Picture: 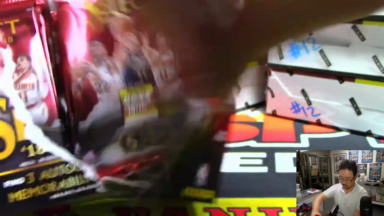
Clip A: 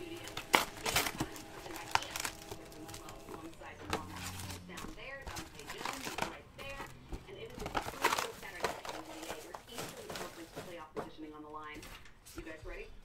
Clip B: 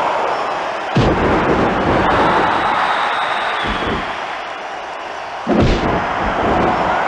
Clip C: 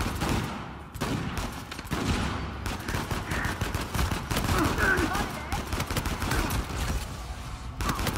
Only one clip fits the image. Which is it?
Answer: A